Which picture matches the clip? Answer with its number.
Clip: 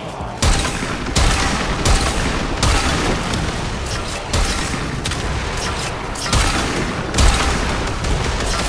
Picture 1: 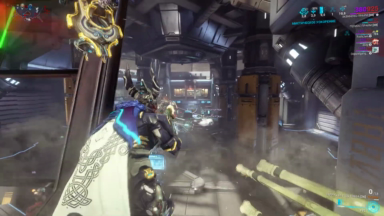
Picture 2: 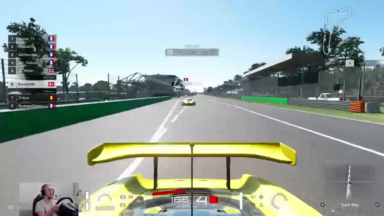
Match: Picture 1